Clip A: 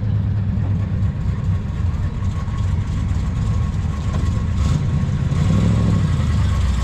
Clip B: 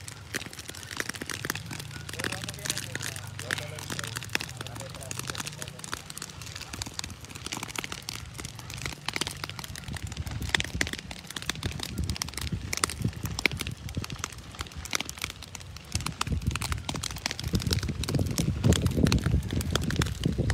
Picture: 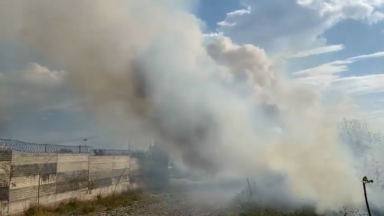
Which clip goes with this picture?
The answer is B